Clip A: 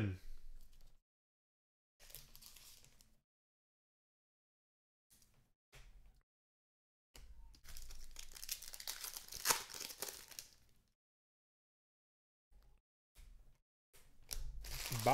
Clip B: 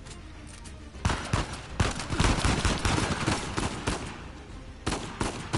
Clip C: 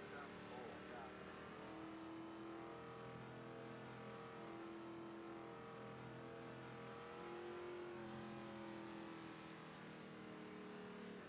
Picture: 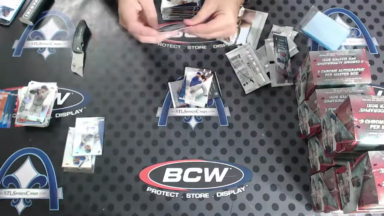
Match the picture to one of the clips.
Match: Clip A